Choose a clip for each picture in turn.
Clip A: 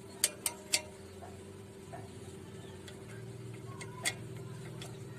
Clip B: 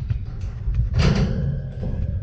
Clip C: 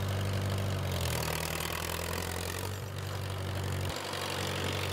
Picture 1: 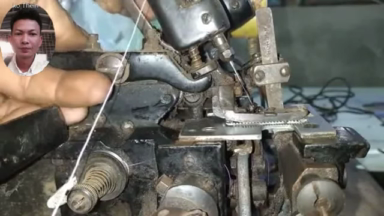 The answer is A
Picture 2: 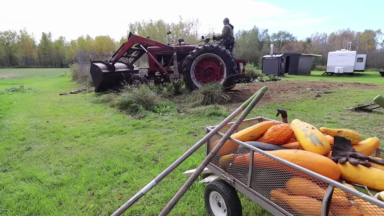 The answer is C